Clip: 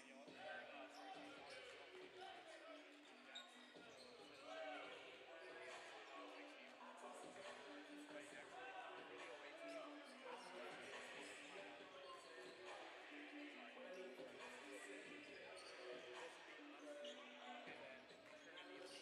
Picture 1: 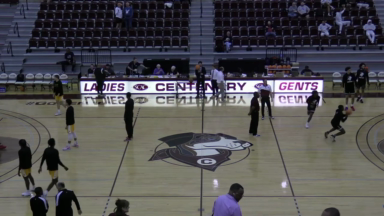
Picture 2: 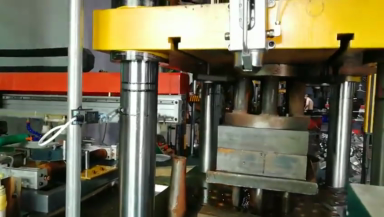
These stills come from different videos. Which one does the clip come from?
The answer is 1